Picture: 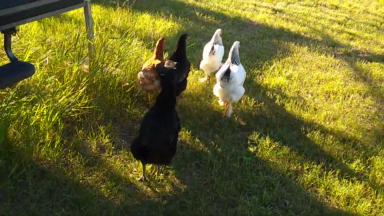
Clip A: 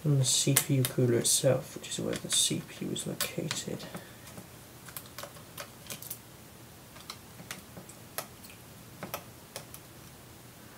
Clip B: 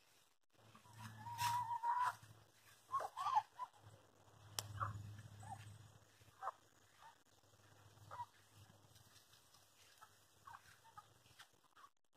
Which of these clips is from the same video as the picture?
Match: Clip B